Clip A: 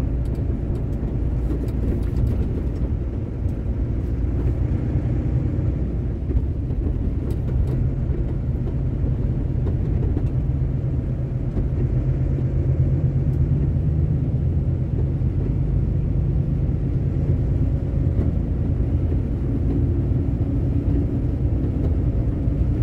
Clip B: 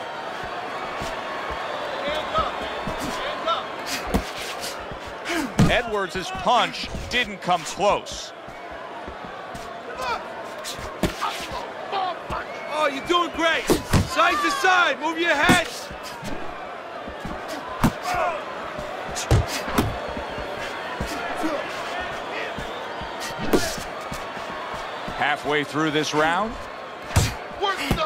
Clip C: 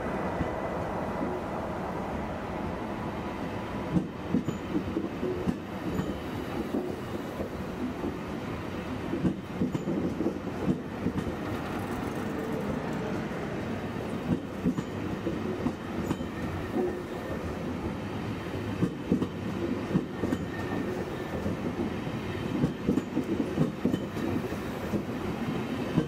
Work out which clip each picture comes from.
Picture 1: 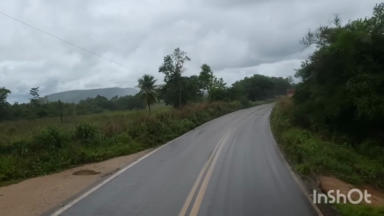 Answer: A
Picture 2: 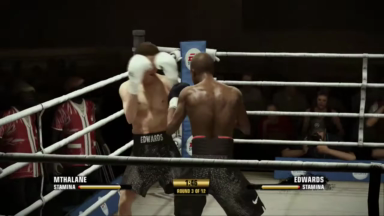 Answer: B